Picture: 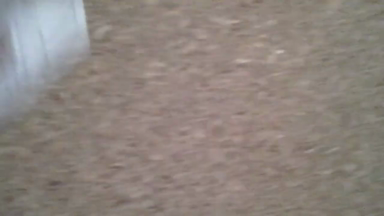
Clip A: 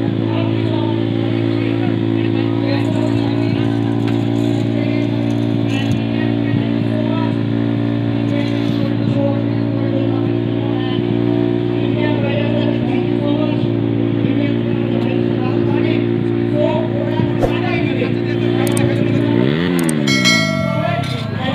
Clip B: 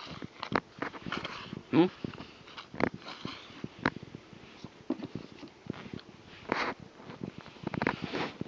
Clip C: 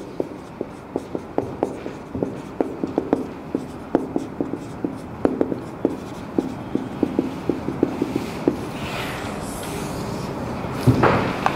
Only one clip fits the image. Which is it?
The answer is B